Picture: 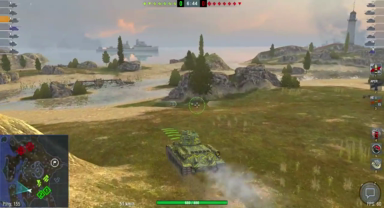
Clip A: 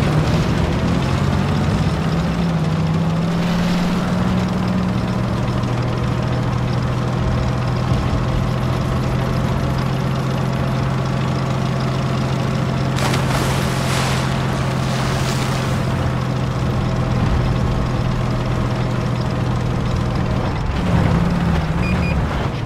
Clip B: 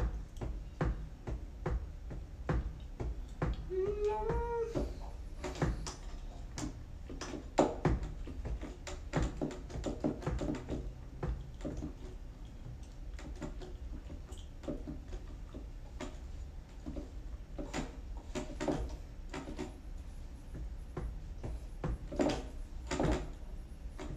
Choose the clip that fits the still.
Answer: A